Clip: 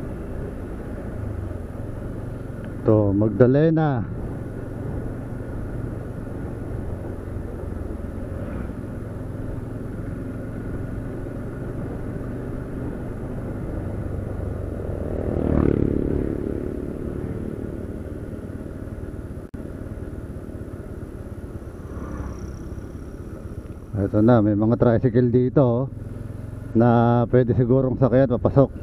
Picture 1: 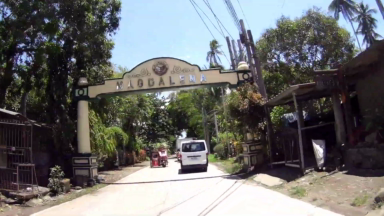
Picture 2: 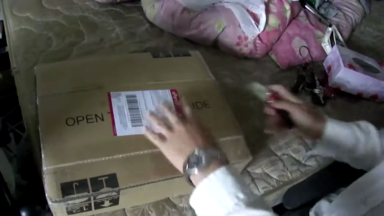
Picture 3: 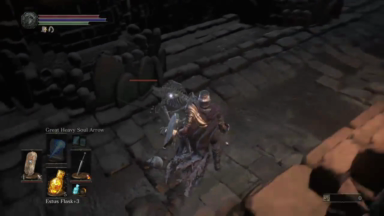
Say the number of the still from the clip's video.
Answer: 1